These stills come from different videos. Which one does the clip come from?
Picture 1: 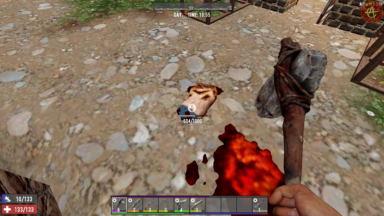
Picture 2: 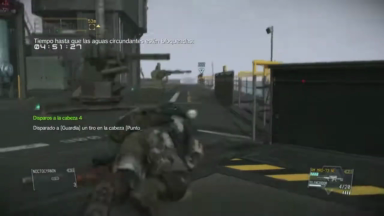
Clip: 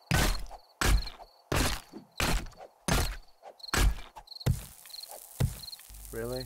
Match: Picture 1